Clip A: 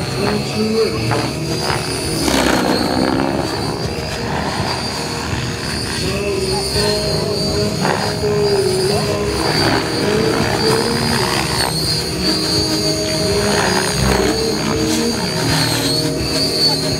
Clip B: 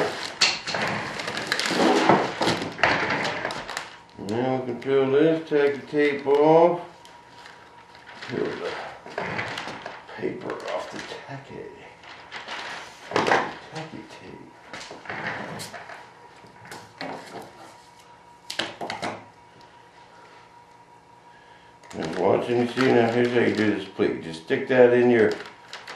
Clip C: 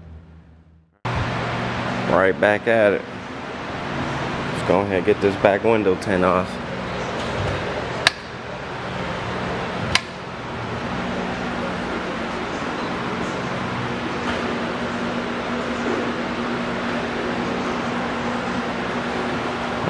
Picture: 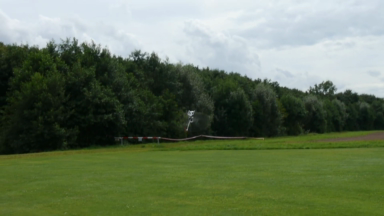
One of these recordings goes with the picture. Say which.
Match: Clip A